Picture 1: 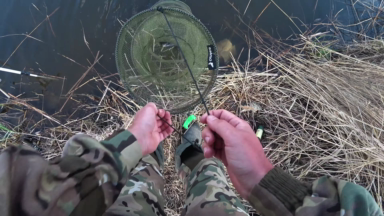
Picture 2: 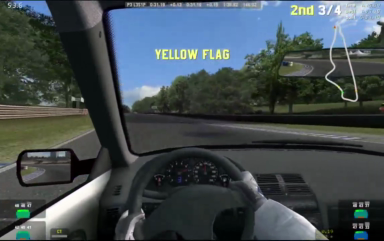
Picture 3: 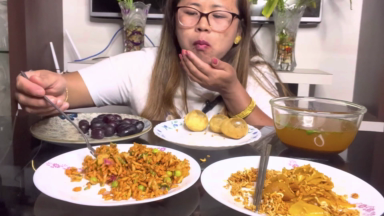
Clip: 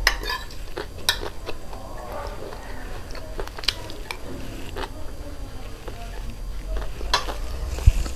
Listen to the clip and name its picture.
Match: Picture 3